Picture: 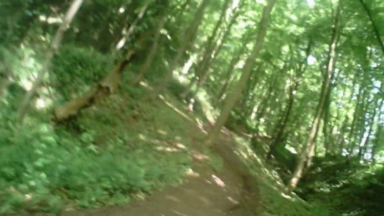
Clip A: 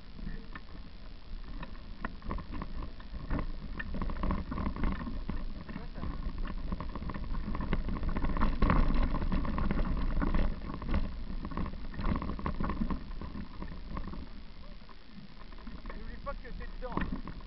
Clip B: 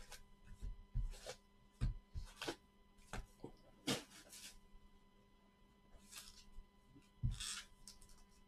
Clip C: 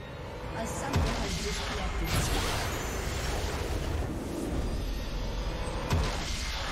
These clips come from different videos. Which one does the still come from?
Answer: A